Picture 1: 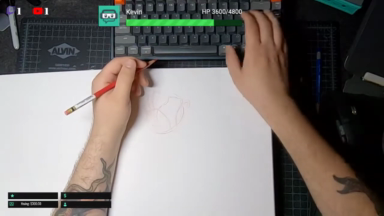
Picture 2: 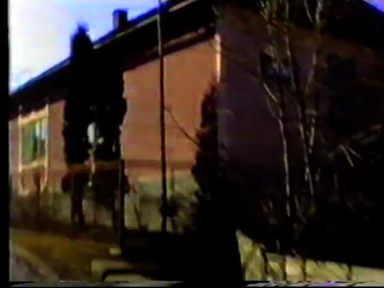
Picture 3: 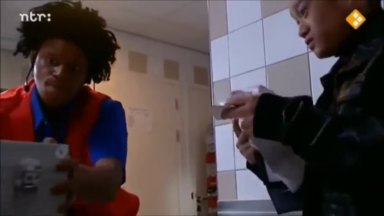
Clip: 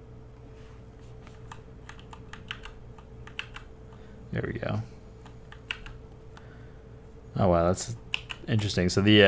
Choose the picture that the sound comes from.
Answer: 1